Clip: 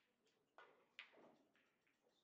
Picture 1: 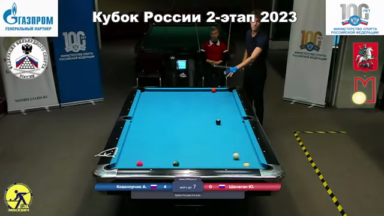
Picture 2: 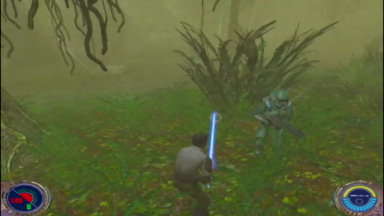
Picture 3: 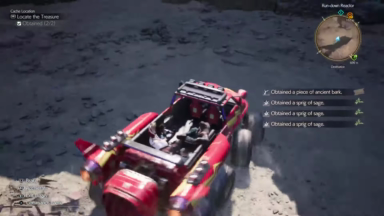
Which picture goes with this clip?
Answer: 1